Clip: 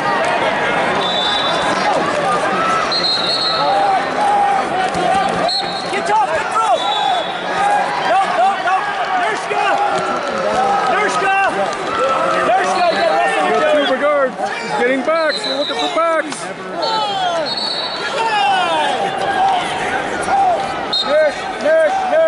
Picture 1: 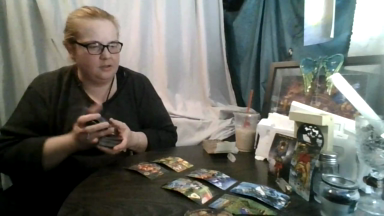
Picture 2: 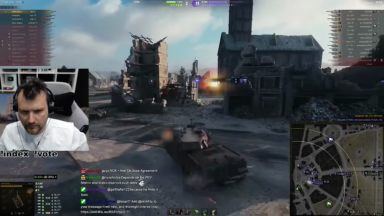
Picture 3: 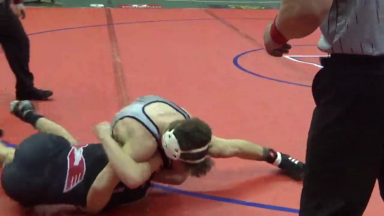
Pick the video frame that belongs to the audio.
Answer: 3